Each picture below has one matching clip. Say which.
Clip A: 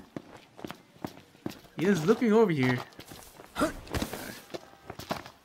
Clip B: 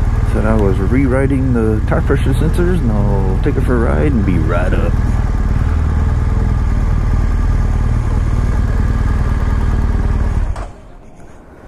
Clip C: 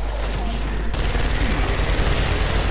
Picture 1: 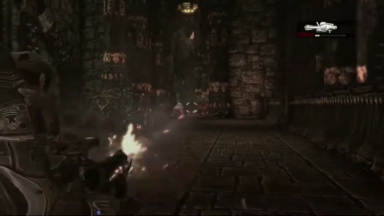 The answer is C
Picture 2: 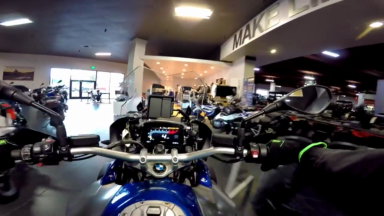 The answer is B